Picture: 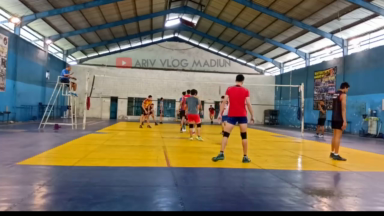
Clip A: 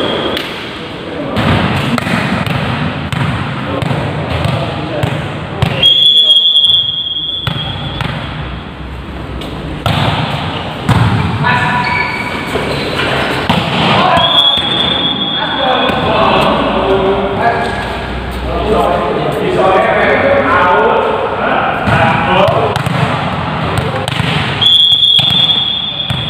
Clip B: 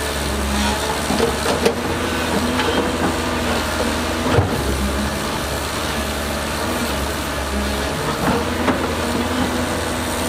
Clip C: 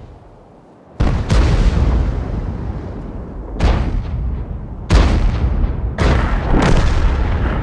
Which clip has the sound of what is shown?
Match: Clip A